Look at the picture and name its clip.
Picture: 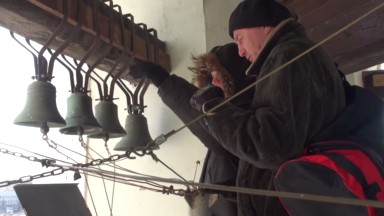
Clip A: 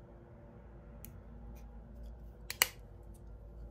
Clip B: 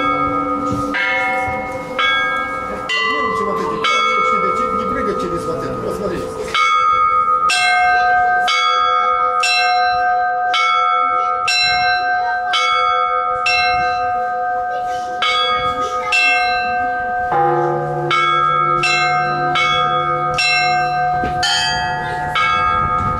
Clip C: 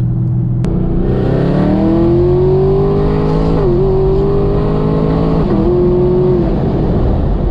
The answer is B